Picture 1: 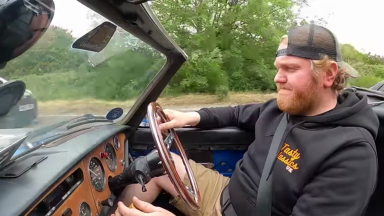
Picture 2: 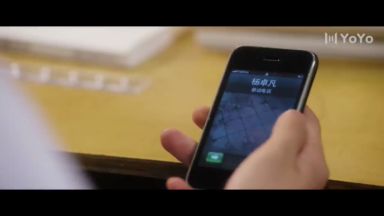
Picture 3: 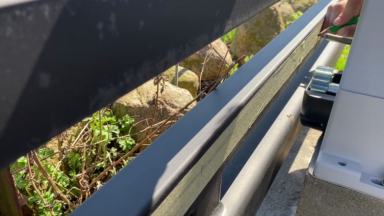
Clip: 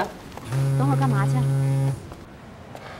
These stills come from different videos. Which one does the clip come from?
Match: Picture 2